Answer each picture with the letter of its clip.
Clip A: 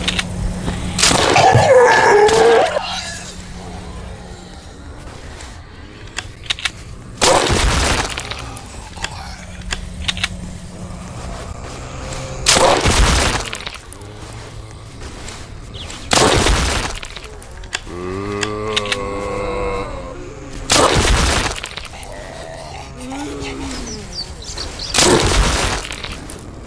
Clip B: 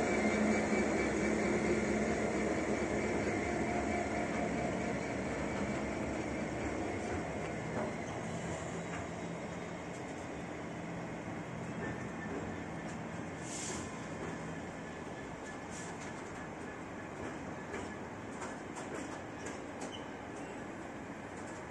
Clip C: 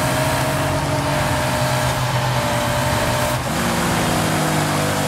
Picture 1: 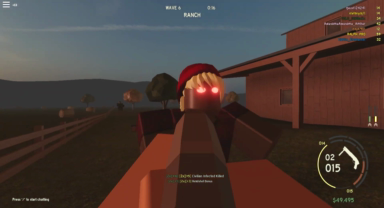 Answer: A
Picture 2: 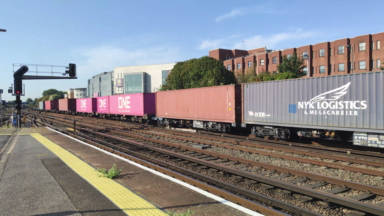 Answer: B